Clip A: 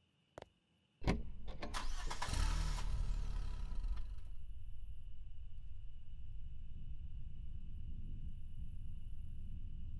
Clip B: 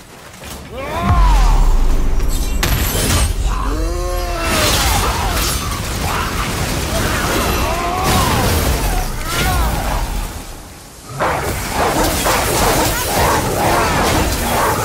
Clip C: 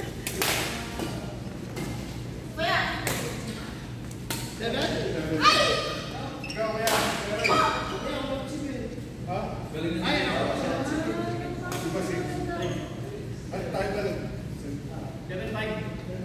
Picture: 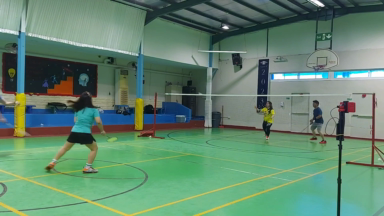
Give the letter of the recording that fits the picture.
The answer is C